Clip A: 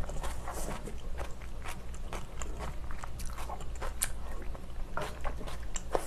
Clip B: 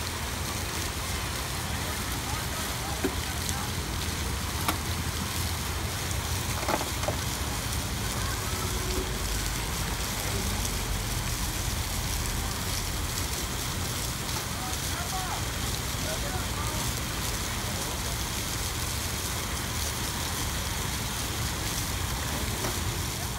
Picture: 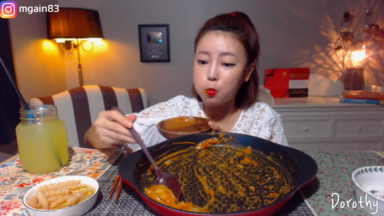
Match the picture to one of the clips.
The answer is A